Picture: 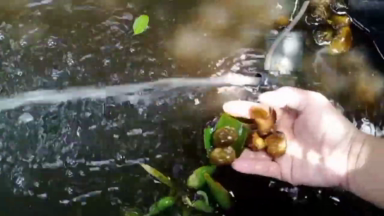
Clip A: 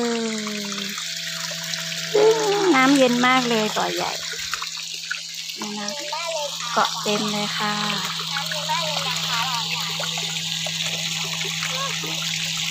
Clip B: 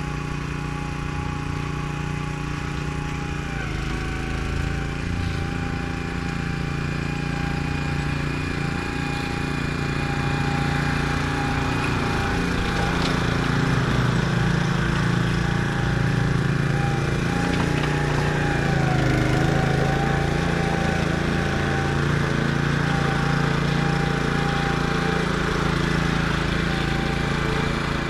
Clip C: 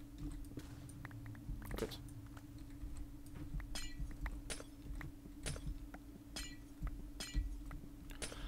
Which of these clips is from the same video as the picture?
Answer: A